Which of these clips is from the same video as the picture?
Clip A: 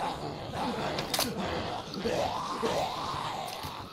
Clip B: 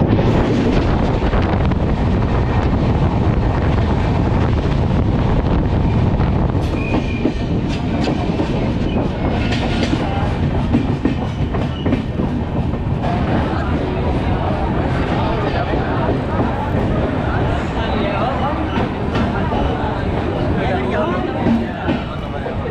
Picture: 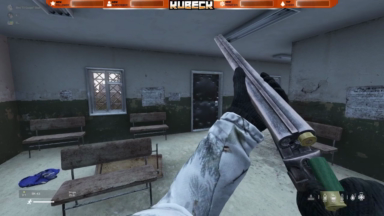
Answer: A